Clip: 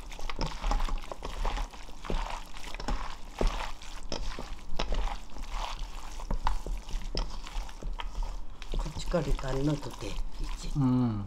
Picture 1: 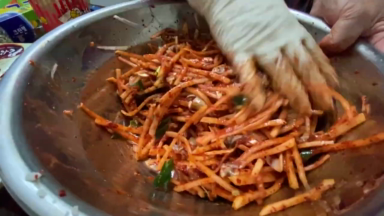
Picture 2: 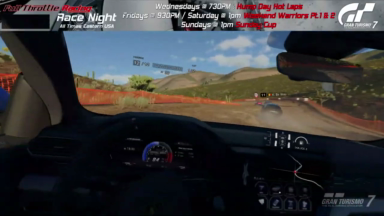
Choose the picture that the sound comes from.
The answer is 1